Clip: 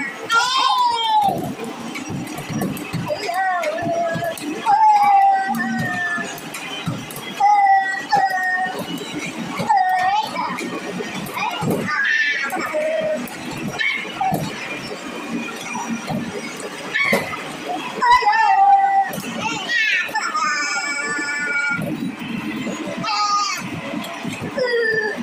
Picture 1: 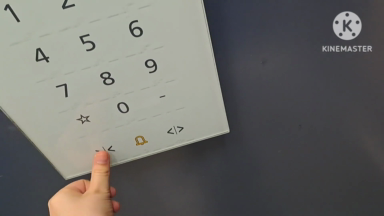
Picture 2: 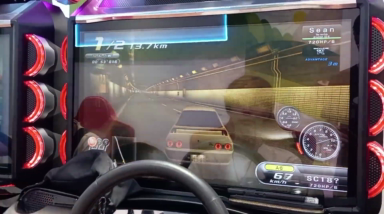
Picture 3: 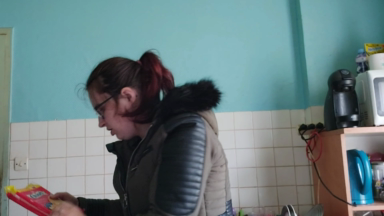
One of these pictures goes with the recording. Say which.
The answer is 2